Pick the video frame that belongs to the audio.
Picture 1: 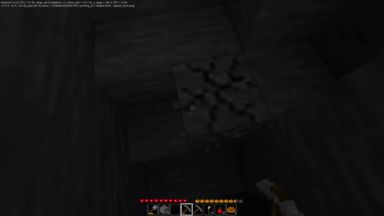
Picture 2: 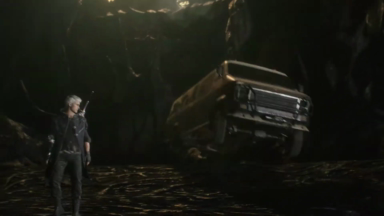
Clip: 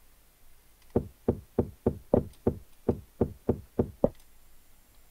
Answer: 1